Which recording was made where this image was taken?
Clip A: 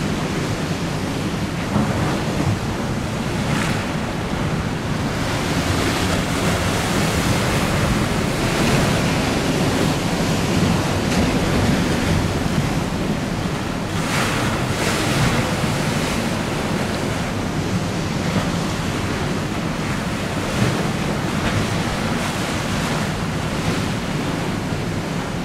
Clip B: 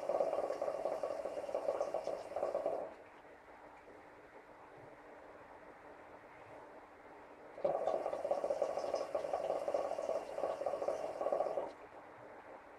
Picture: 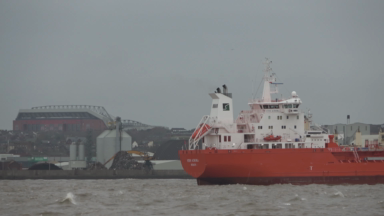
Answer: A